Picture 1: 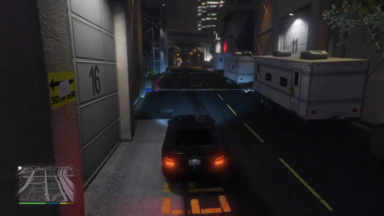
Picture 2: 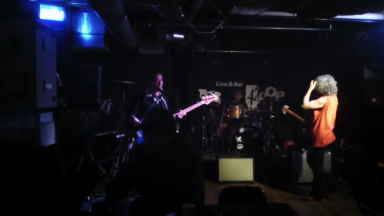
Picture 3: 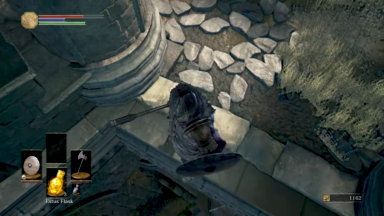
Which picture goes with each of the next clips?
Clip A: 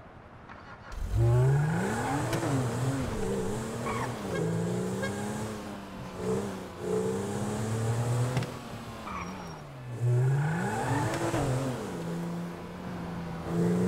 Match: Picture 1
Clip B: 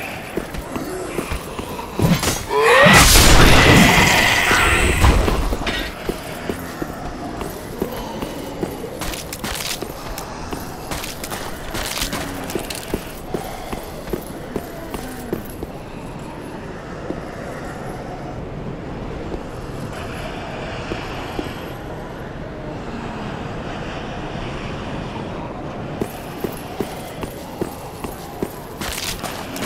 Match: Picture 3